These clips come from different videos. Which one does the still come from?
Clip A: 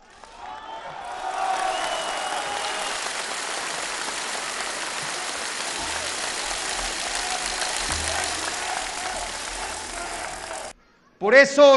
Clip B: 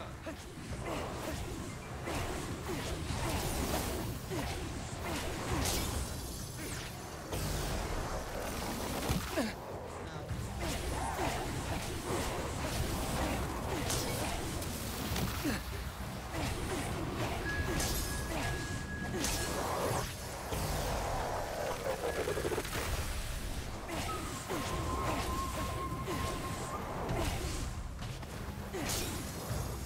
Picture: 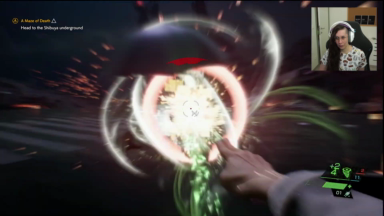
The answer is B